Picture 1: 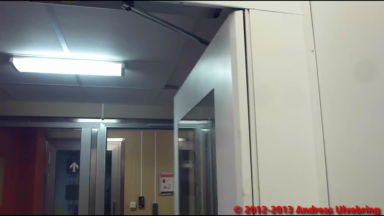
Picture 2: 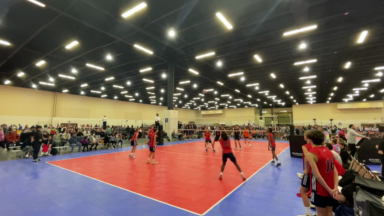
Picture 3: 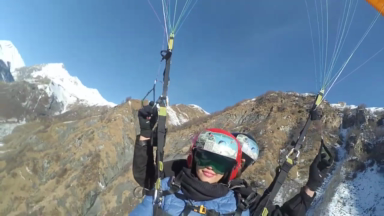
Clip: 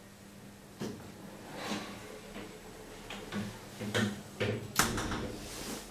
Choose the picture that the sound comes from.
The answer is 1